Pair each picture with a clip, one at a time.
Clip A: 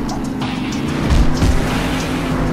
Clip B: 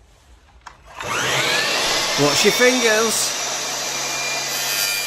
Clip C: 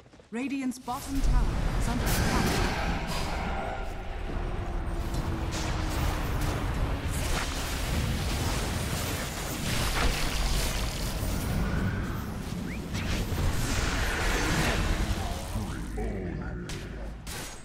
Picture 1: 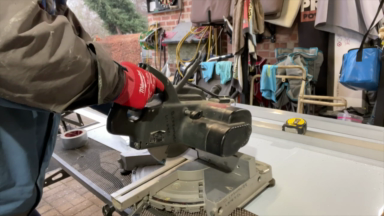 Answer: B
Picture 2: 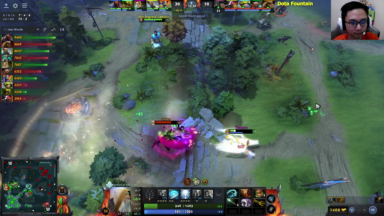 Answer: C